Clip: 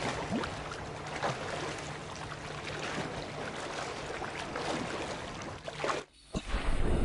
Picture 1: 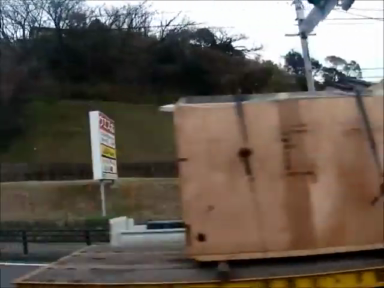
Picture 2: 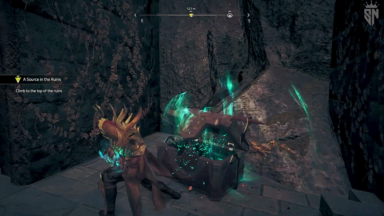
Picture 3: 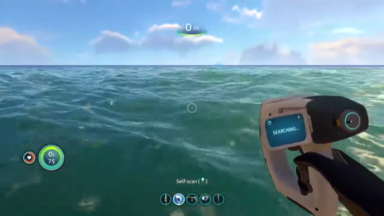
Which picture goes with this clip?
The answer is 3